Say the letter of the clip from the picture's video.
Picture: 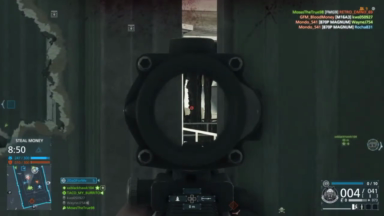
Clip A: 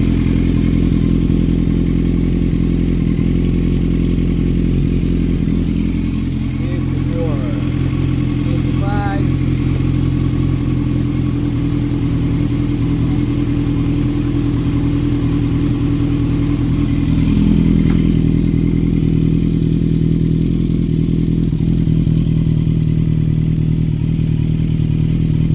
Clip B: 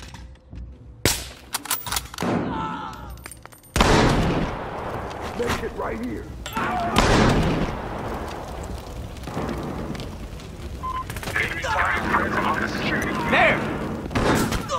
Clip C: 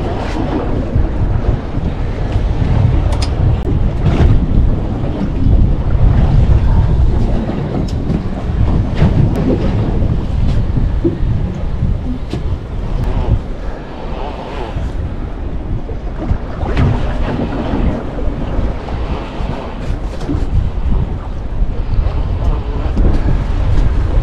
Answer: B